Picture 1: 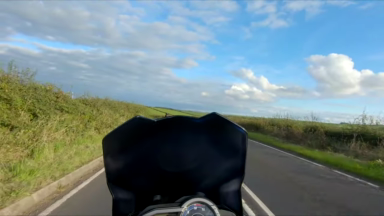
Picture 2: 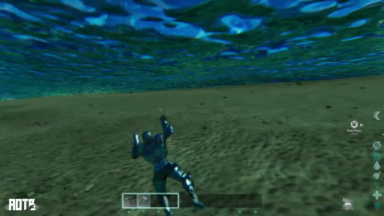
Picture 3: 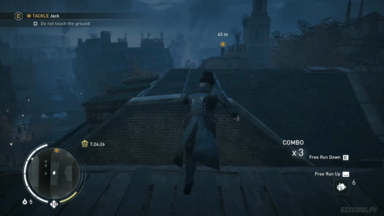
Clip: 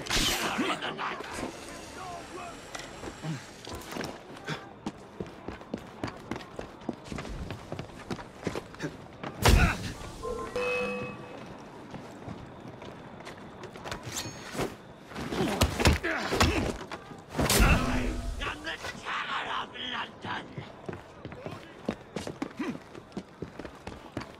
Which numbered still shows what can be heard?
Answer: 3